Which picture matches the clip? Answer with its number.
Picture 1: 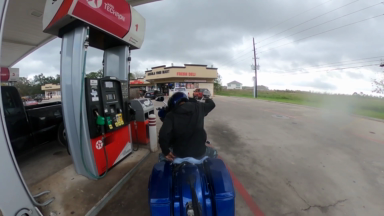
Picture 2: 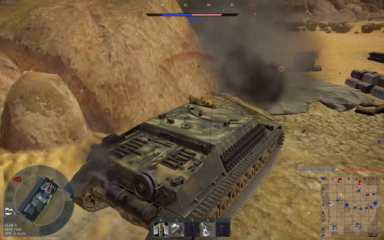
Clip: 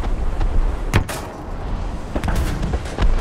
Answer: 2